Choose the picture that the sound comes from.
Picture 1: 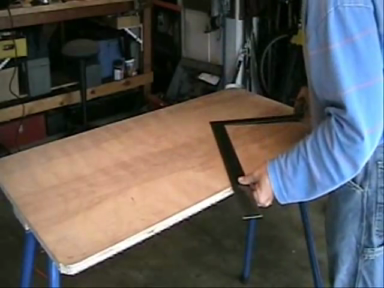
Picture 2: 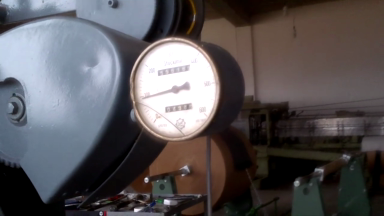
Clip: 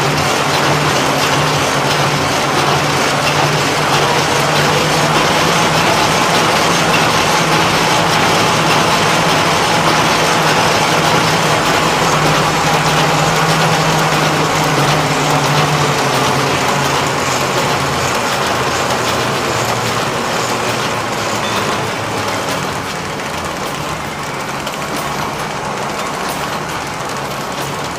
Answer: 2